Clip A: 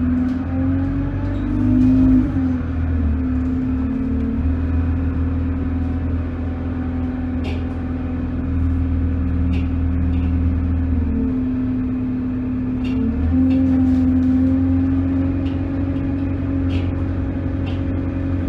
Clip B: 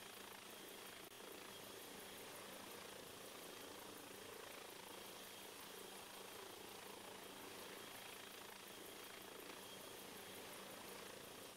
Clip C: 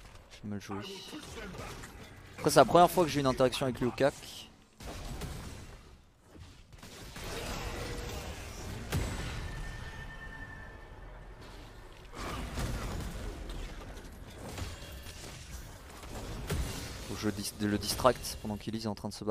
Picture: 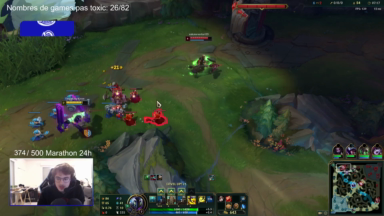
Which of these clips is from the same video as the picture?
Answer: C